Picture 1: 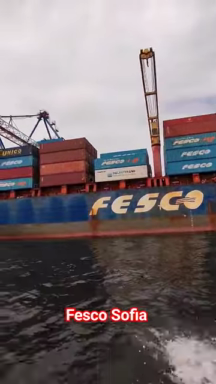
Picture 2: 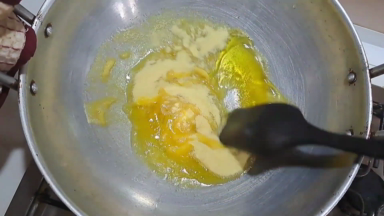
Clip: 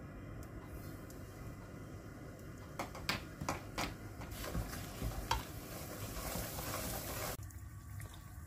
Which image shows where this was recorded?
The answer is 2